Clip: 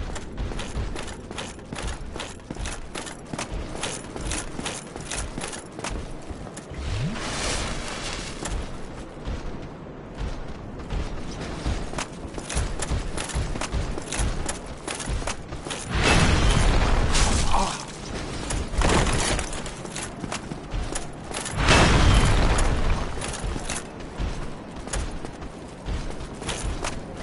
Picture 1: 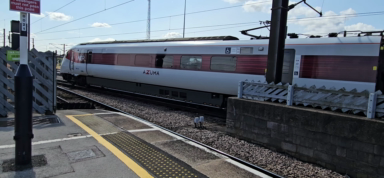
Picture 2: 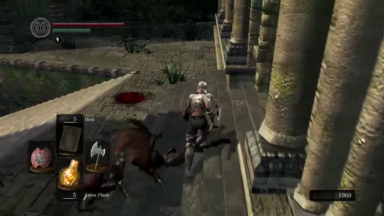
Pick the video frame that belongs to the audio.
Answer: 2